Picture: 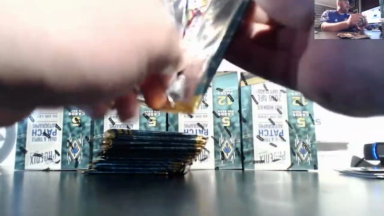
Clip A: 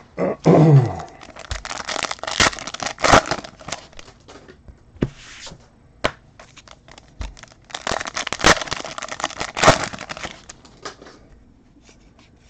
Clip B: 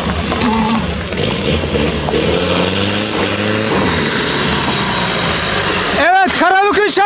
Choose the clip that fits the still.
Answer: A